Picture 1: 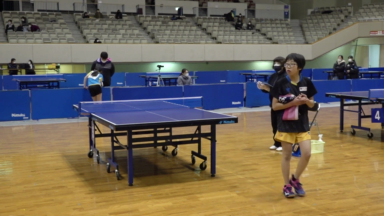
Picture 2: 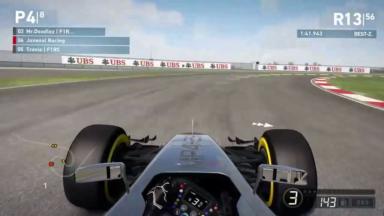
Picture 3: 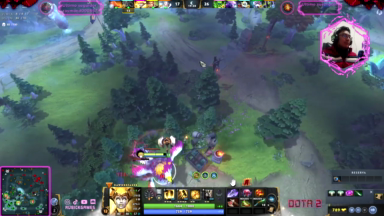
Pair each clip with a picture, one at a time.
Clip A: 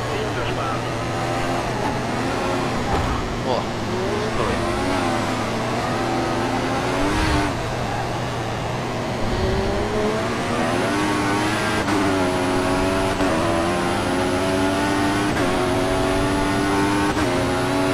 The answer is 2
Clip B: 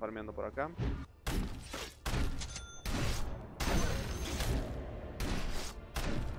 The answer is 3